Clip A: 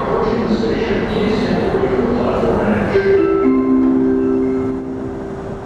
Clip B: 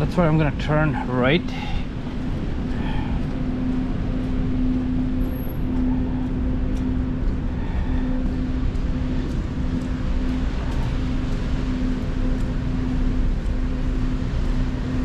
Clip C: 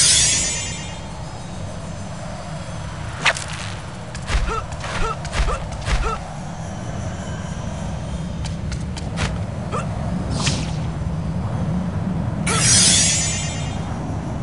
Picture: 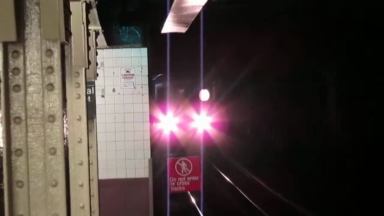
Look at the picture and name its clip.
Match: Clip A